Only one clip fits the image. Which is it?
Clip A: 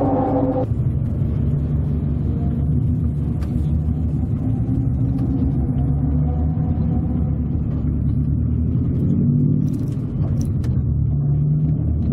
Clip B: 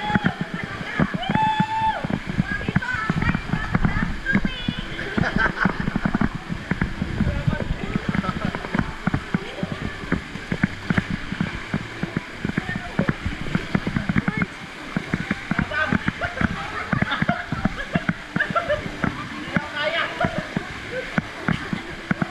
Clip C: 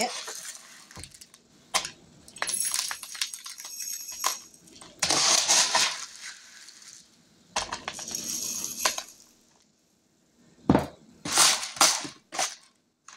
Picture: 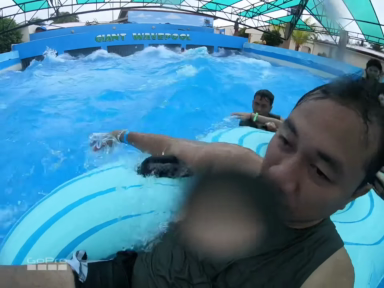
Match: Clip B